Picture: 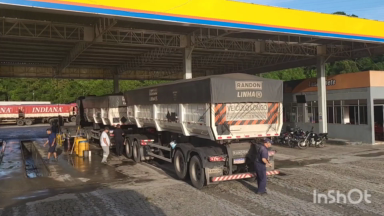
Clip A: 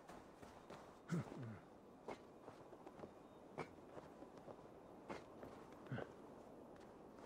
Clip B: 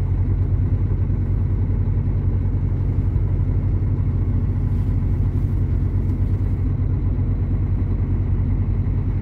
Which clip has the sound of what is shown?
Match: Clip B